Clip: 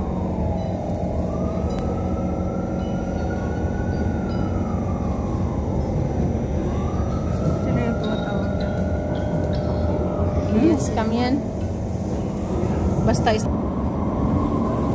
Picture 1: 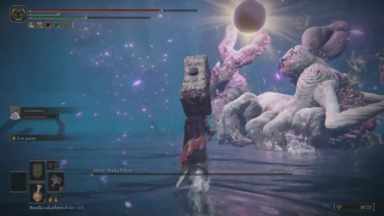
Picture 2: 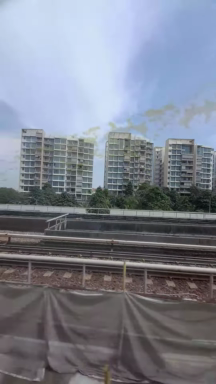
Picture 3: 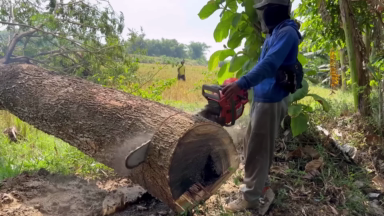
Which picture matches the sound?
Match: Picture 2